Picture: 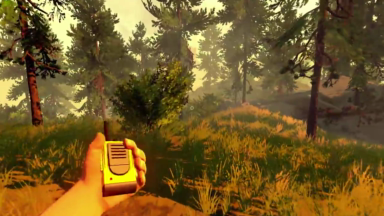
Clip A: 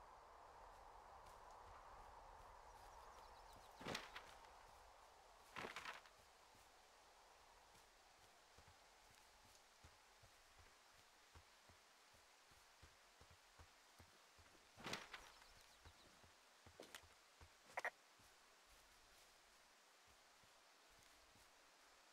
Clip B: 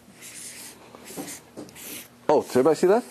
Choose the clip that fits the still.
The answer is A